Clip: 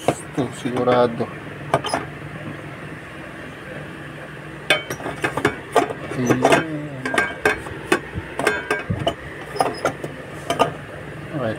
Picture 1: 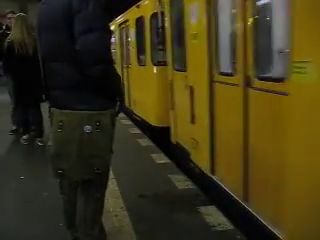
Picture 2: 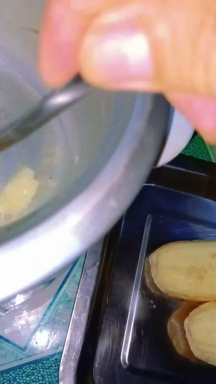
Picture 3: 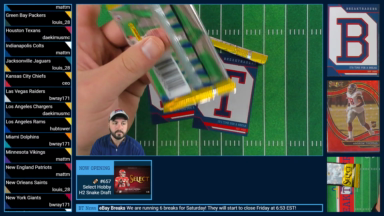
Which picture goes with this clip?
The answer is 2